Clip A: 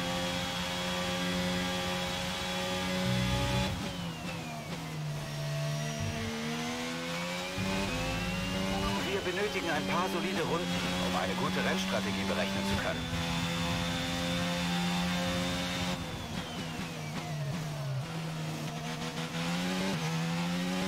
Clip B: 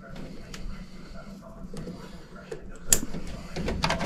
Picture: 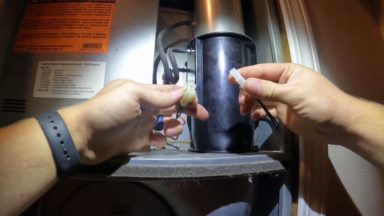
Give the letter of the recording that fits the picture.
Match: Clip B